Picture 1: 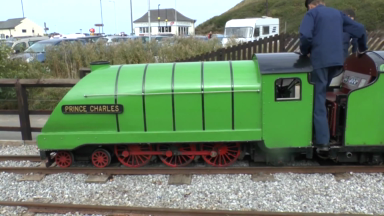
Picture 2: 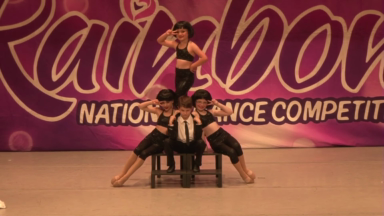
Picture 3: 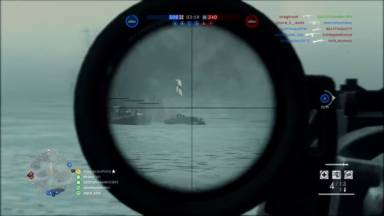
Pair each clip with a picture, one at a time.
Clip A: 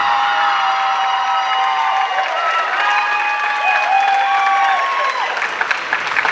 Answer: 2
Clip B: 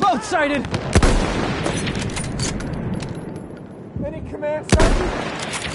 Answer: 3